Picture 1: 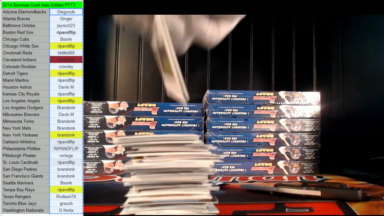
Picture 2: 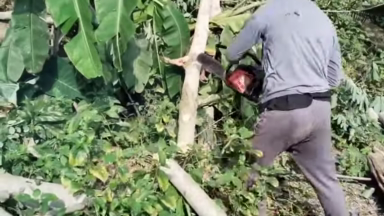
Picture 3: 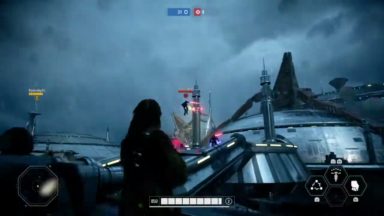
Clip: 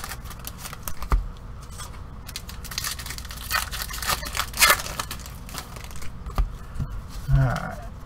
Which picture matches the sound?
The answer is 1